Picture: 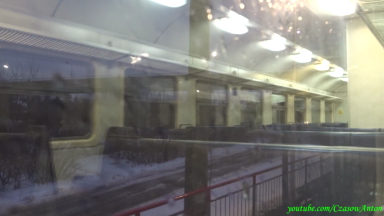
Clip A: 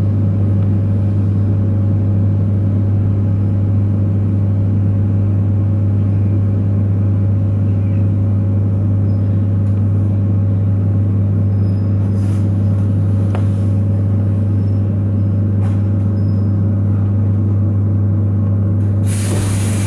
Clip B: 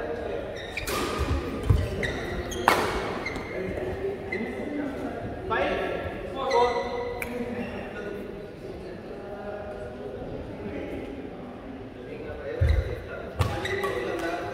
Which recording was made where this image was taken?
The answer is A